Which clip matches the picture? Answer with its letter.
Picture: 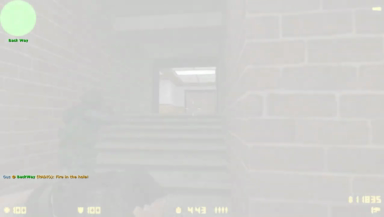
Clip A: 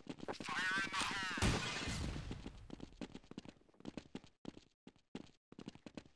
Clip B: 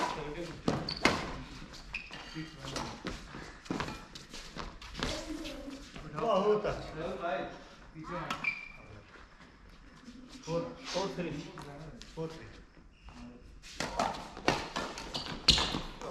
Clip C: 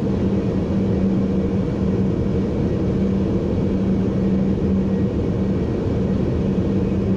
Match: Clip A